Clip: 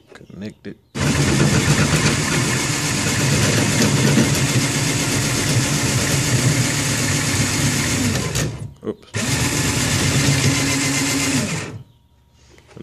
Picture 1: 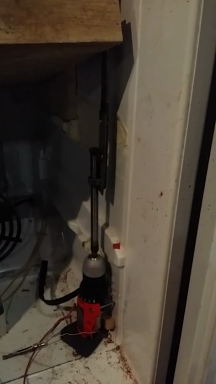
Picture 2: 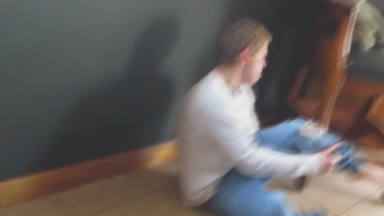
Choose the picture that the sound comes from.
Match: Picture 1